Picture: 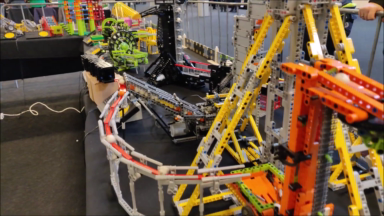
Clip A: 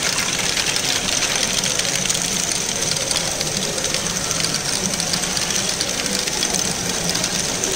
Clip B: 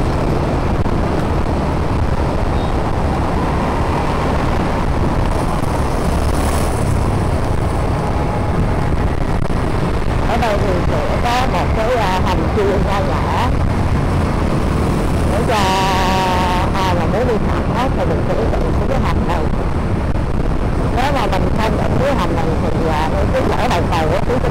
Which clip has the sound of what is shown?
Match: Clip A